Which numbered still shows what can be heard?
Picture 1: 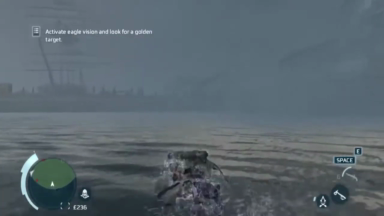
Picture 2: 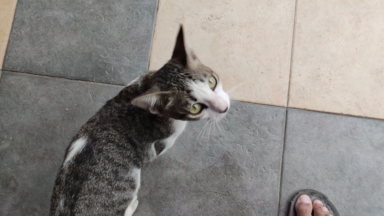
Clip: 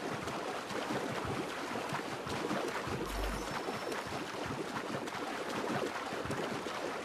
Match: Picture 1